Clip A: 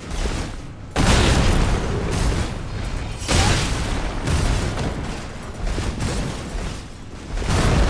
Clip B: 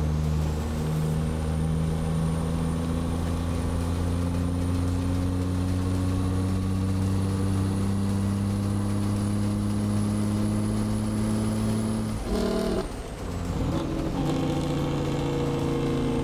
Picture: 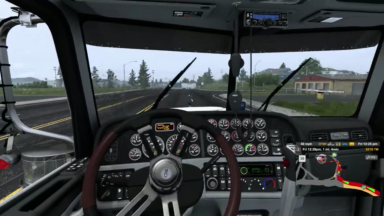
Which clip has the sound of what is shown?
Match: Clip B